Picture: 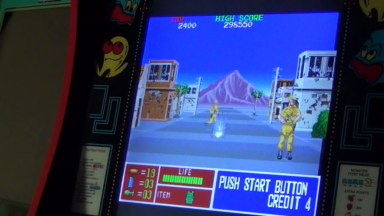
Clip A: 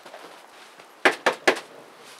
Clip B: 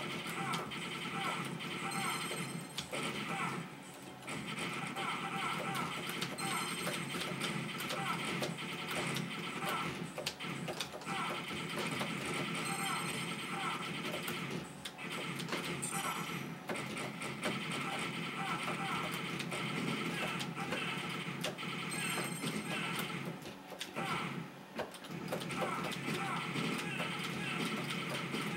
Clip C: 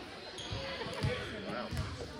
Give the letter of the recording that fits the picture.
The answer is B